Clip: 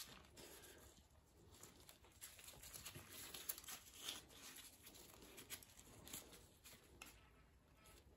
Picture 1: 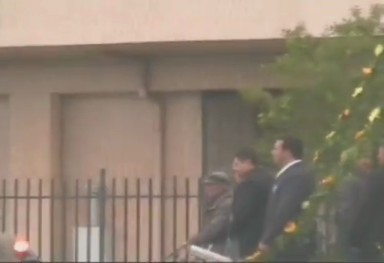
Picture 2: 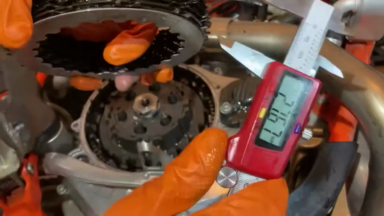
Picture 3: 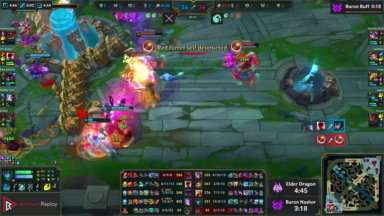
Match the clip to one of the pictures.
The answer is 2